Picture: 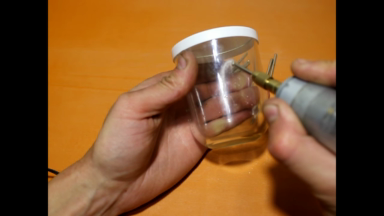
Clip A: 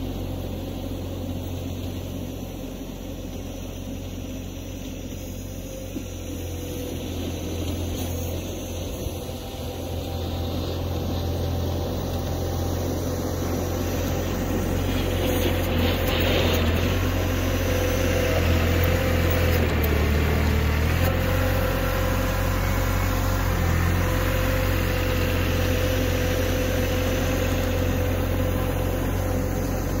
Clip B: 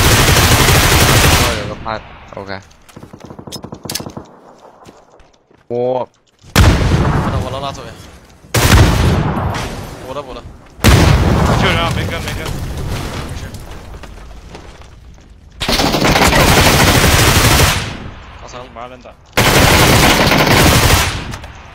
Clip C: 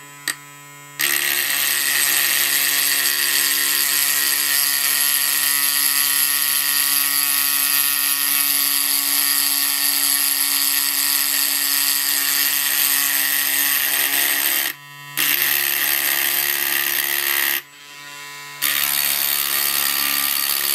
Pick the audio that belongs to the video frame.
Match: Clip C